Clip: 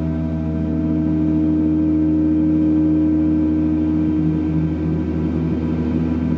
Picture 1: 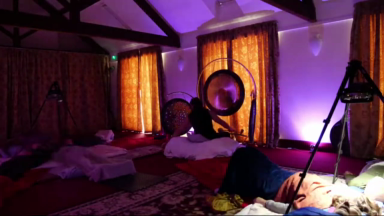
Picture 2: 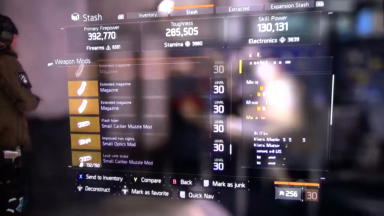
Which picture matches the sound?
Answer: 1